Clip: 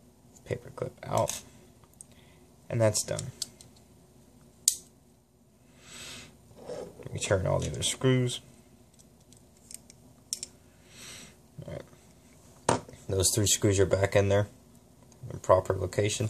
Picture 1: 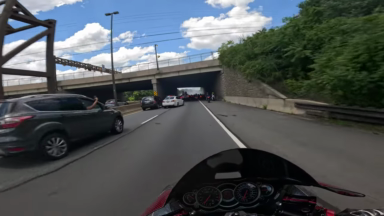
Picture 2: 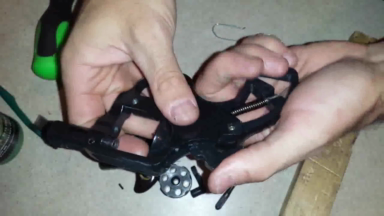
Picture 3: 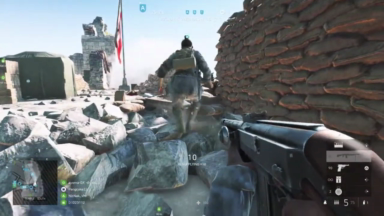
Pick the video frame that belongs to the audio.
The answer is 2